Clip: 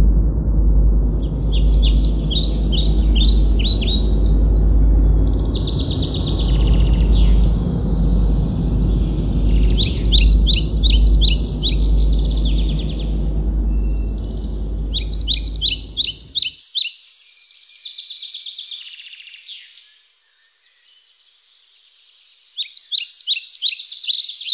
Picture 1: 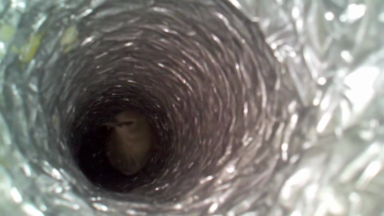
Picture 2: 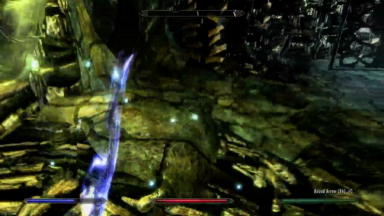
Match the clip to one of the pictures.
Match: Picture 1